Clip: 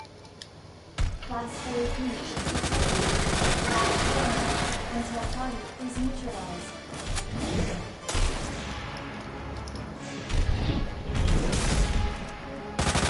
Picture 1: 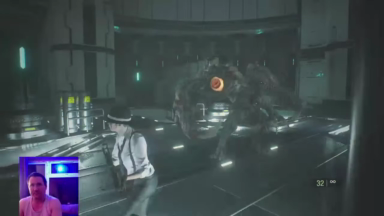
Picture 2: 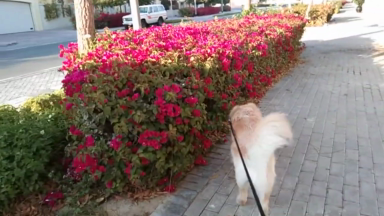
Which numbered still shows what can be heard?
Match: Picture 1